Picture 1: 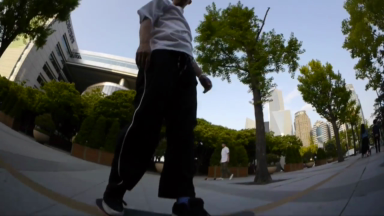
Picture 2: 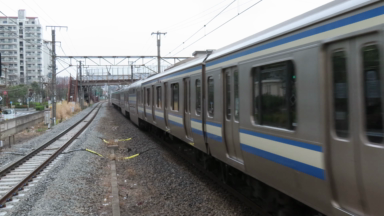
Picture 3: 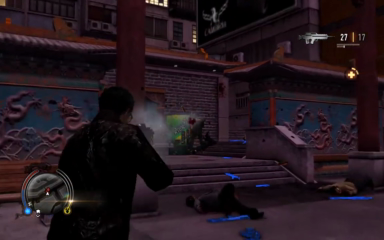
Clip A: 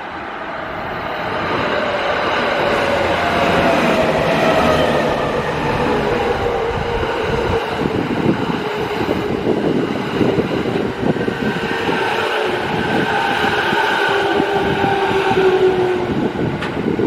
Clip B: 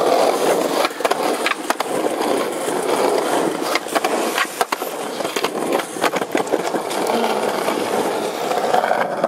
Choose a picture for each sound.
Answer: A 2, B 1